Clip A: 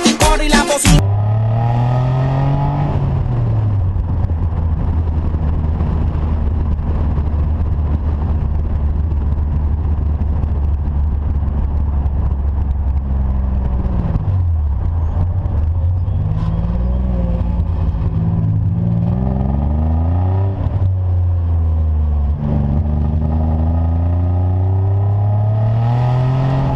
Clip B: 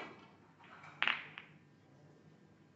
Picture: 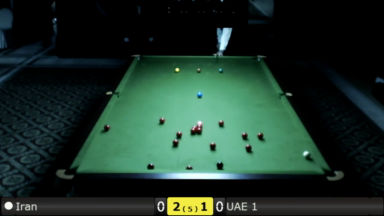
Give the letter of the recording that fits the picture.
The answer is B